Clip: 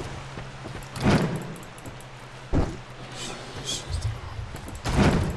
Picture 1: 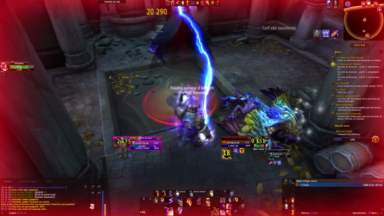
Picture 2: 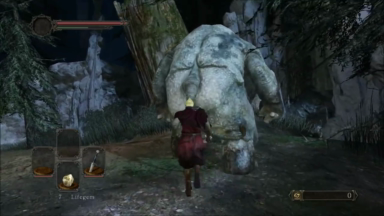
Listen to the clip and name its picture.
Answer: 2